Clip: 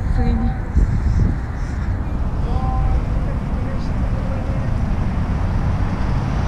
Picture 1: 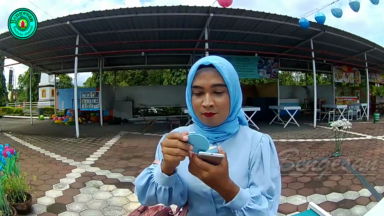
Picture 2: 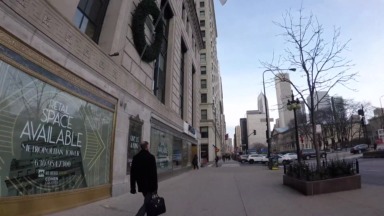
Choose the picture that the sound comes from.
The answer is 2